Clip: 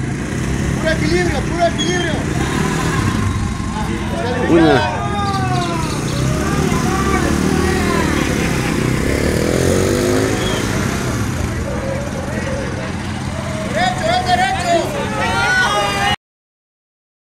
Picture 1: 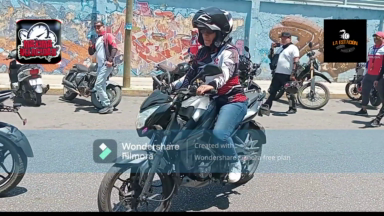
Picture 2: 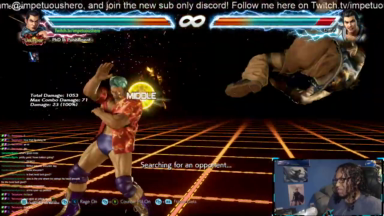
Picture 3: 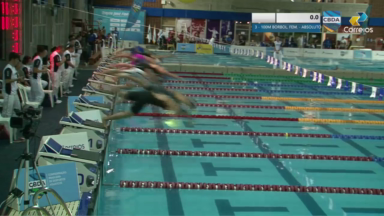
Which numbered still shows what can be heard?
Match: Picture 1